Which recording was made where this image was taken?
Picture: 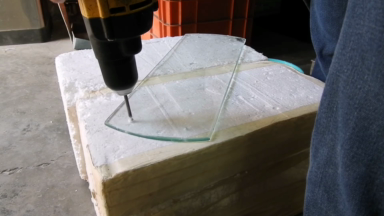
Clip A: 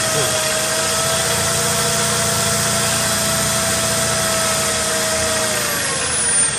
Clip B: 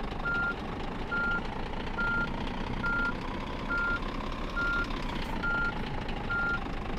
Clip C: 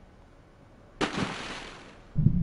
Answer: A